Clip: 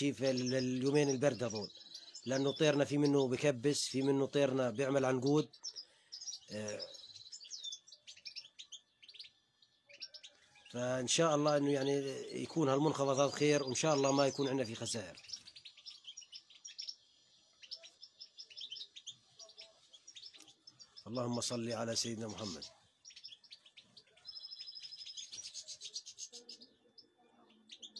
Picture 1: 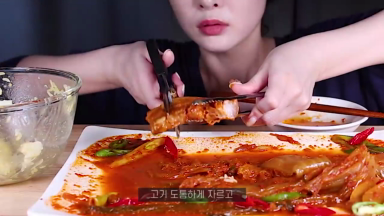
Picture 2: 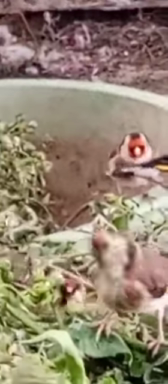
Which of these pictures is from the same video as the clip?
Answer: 2